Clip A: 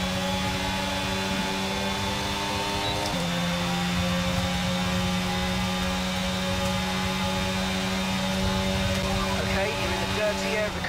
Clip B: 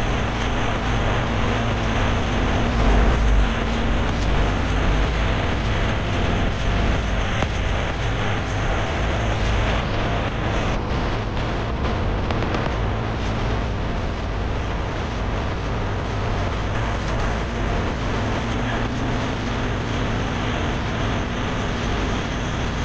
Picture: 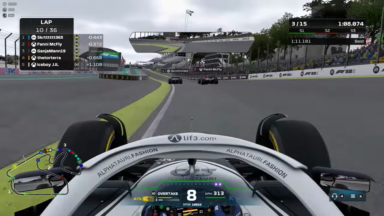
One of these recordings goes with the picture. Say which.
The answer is A